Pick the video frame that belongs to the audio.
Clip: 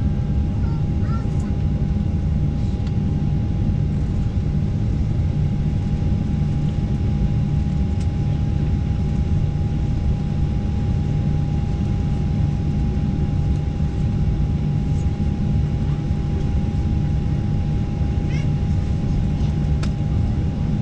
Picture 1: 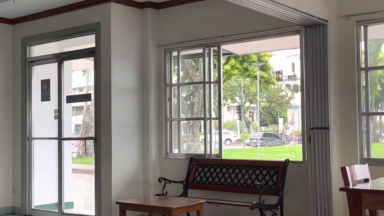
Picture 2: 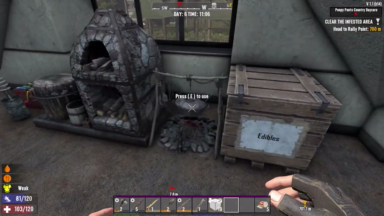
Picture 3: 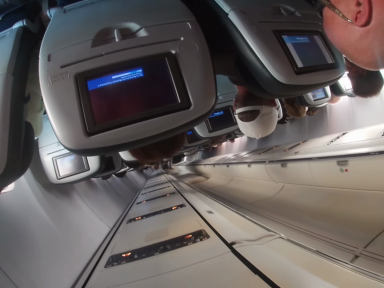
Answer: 3